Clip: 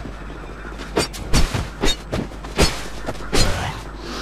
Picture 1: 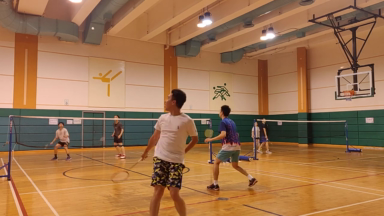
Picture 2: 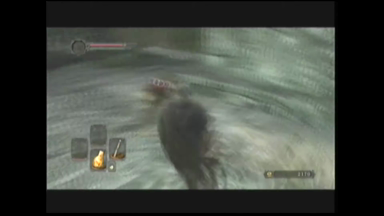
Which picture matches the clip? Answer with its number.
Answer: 2